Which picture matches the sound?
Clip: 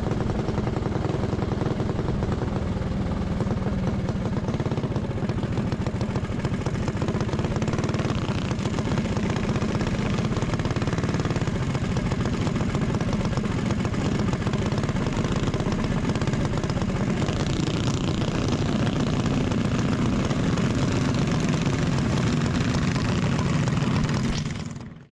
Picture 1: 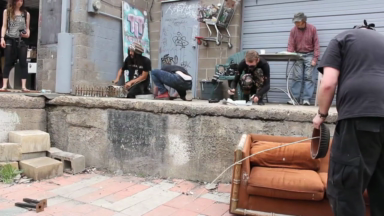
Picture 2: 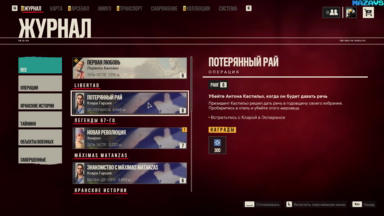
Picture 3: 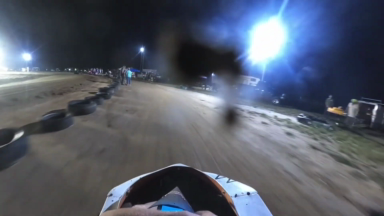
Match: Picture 3